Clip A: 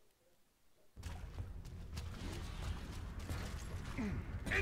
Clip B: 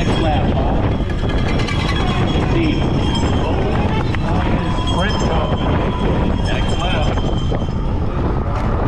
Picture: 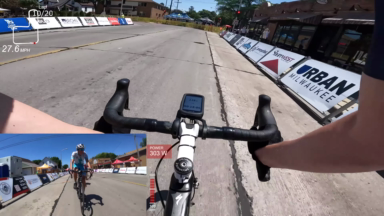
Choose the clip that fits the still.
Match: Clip B